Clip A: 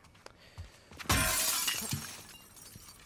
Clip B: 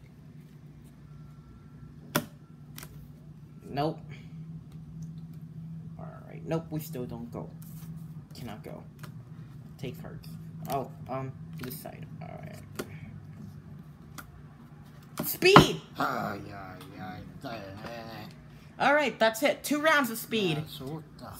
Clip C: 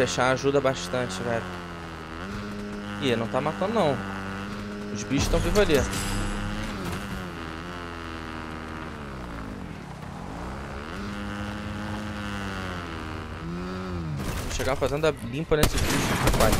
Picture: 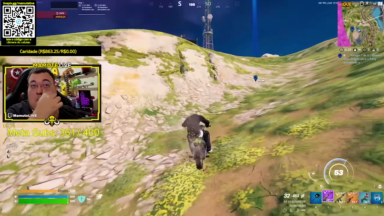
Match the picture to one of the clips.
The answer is C